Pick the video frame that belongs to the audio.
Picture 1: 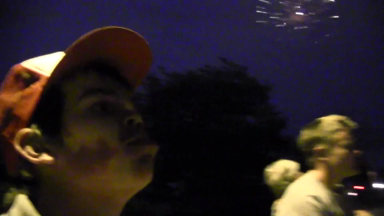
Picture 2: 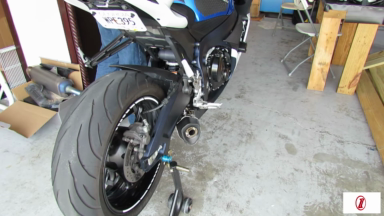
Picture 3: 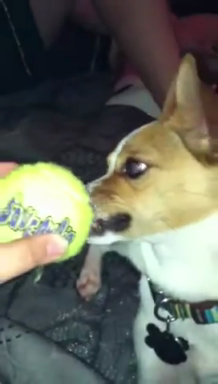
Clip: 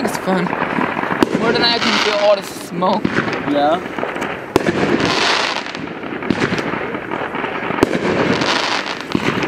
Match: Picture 1